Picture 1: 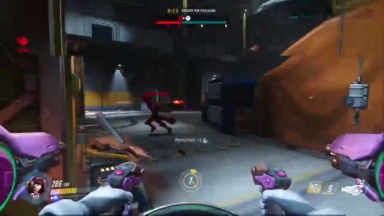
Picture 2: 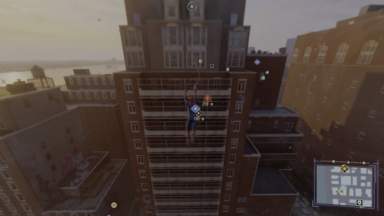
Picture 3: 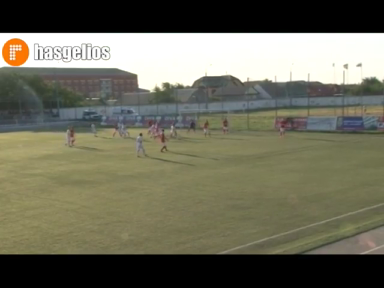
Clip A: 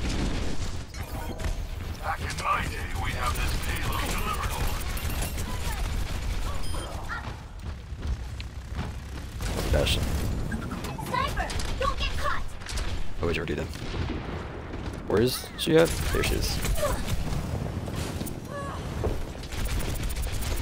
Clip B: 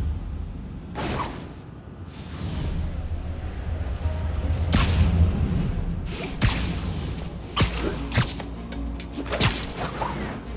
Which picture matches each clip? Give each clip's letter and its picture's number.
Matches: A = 1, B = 2